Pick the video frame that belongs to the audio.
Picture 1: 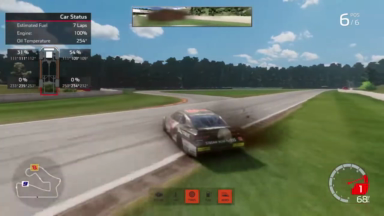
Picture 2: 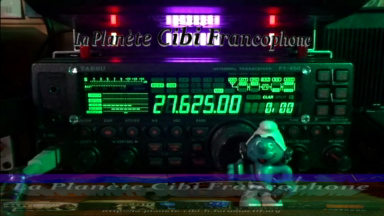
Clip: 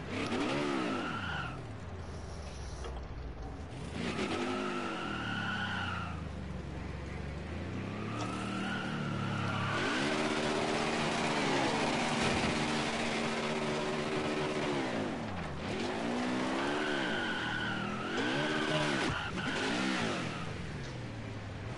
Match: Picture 1